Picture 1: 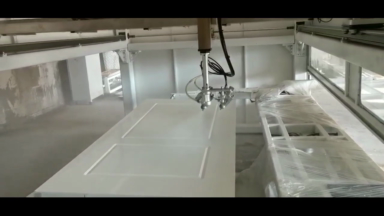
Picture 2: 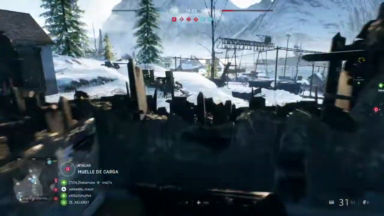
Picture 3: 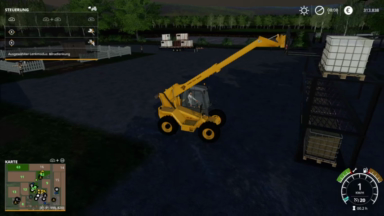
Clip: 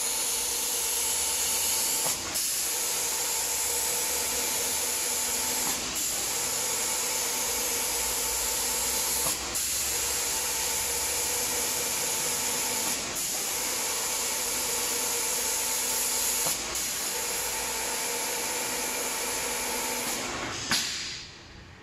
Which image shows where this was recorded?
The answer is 1